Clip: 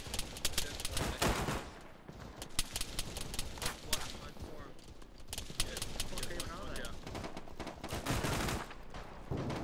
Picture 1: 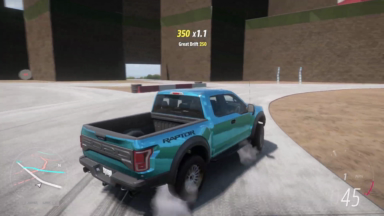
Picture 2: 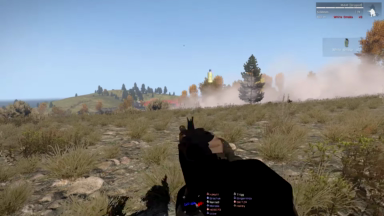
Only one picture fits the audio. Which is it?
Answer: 2